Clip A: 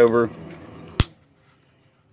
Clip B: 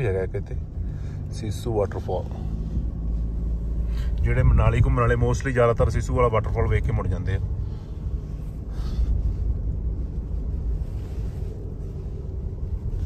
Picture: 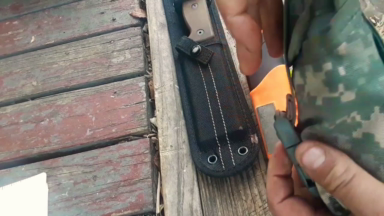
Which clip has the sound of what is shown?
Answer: A